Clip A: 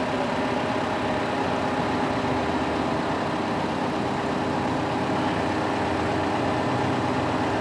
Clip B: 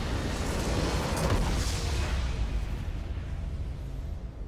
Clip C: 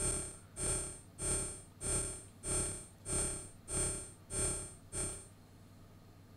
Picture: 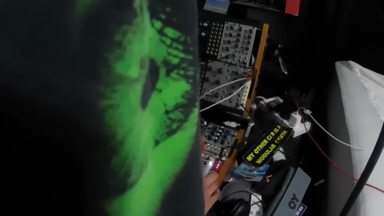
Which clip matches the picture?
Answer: C